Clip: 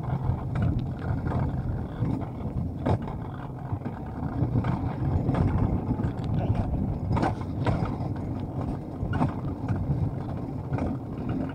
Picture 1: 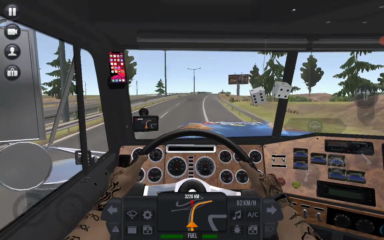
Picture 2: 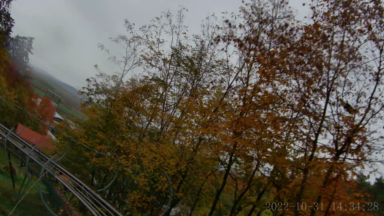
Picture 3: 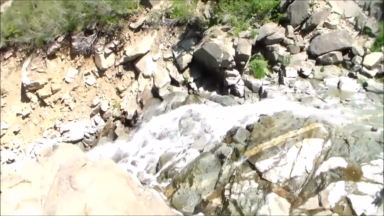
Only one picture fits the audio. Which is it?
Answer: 2